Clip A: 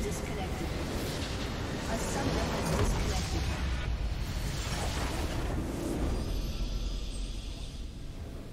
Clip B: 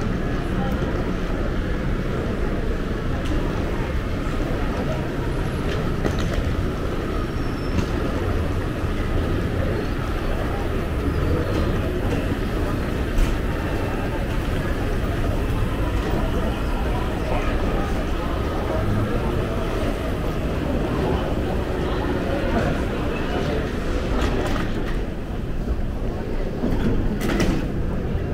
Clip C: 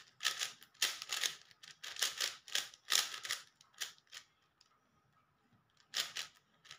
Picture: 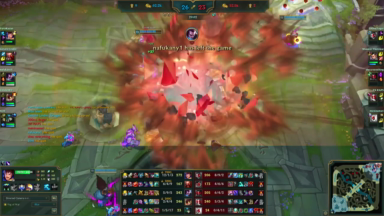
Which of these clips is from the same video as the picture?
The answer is A